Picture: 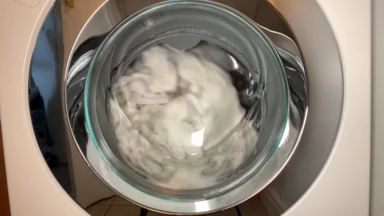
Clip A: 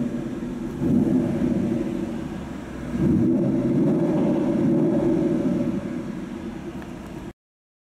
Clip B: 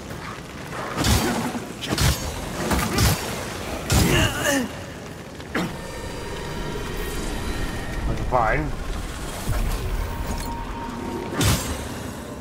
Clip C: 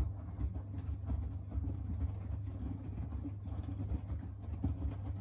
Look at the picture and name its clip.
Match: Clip C